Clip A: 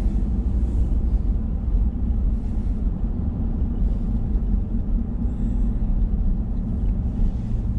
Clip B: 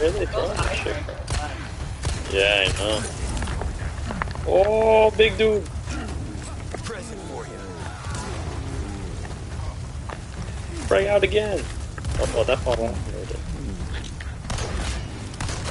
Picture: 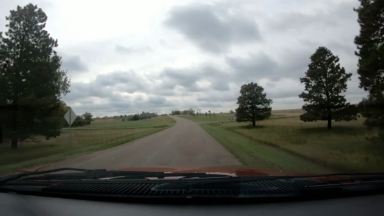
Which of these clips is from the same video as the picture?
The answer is A